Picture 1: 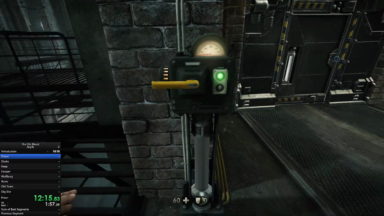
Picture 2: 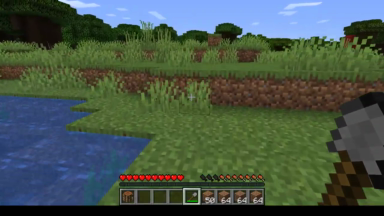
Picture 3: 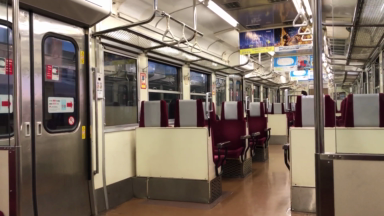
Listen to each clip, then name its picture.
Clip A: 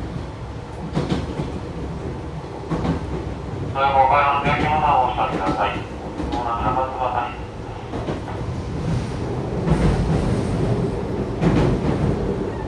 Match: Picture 3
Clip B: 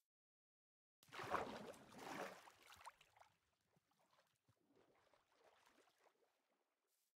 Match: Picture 2